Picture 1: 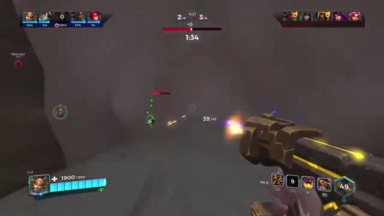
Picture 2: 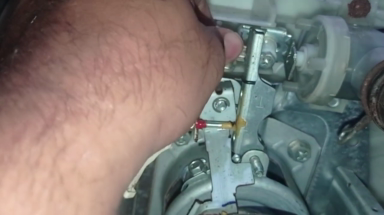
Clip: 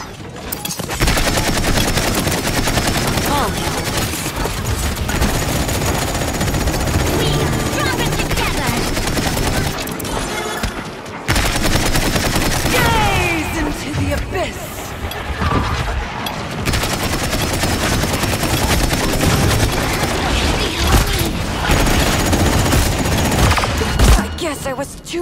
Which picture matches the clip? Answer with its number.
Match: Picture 1